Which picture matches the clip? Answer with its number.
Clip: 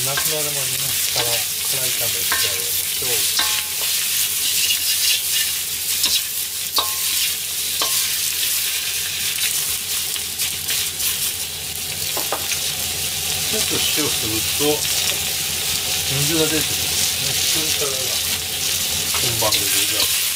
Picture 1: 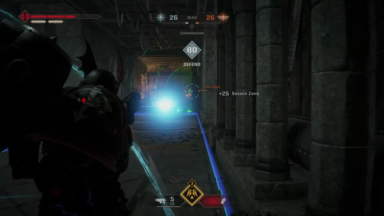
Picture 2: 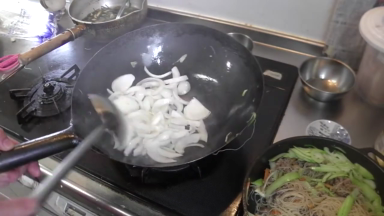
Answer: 2